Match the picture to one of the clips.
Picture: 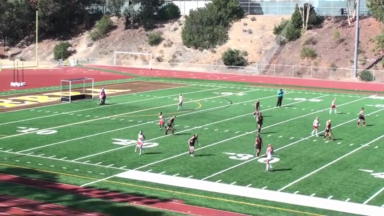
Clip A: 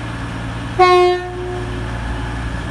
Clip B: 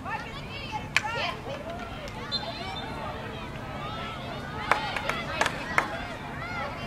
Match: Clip B